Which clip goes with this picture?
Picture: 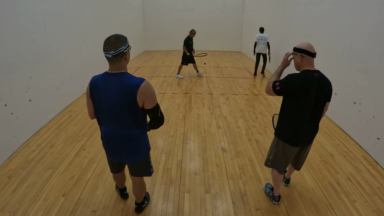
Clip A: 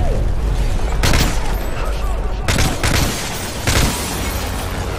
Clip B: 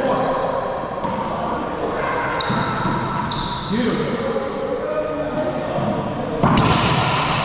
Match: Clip B